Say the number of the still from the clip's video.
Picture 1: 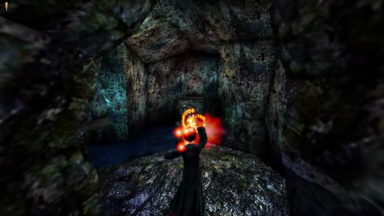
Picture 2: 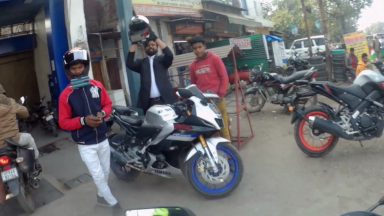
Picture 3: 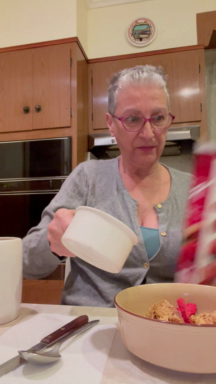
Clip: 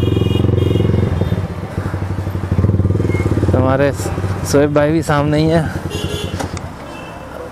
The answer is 2